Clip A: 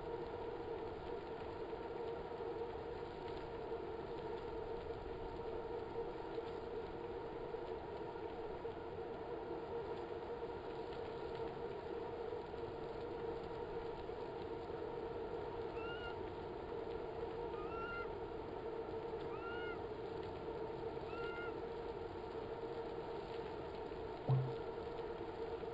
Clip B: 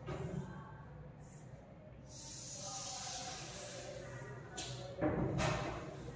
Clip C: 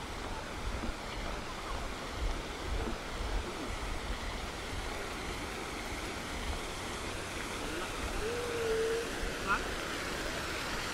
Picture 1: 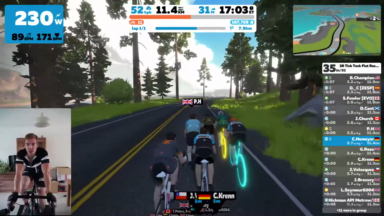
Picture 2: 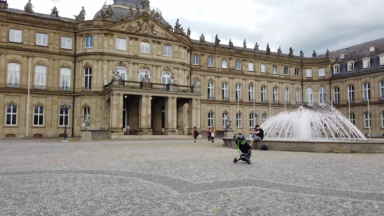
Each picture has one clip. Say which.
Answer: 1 A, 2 C